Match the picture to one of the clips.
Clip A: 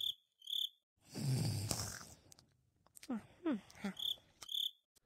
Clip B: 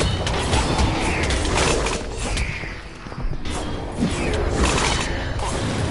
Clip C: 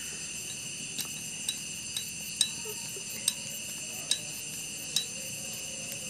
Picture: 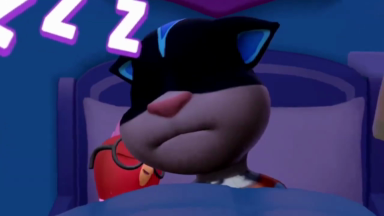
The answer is A